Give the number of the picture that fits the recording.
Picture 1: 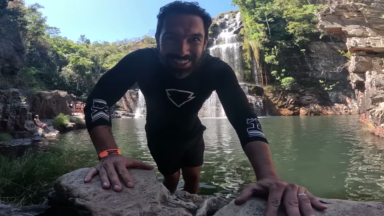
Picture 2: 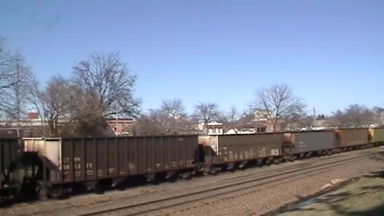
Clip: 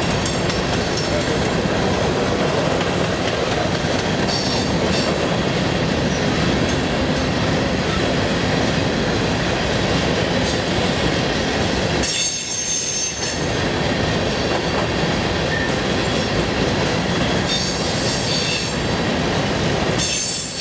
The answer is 2